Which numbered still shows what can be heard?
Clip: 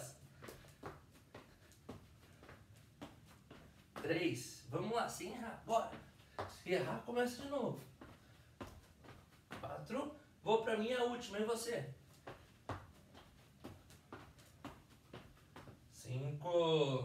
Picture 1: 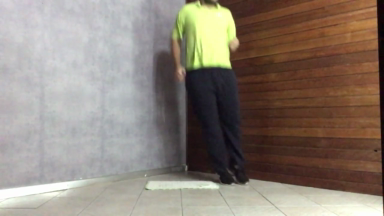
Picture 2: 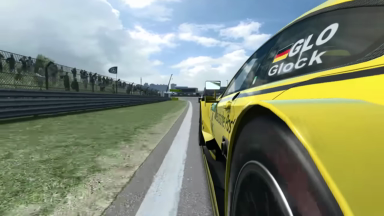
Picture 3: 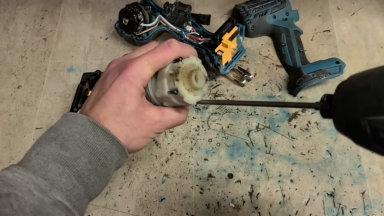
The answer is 1